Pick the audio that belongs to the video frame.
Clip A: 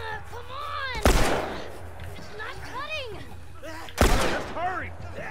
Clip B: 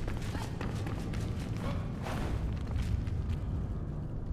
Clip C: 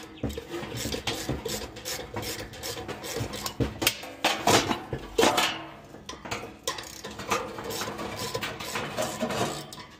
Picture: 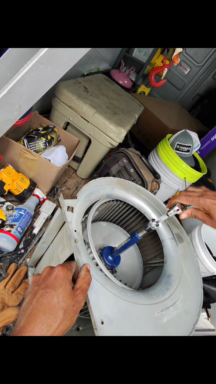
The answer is C